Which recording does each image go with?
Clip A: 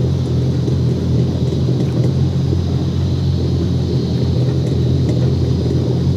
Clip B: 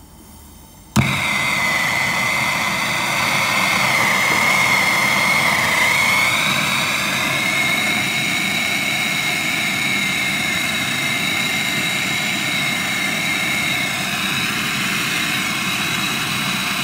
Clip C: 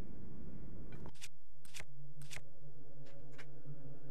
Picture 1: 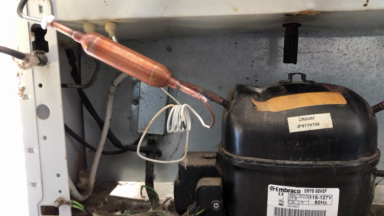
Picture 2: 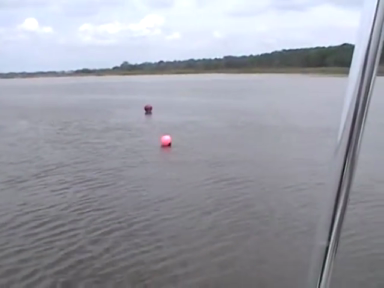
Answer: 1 B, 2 A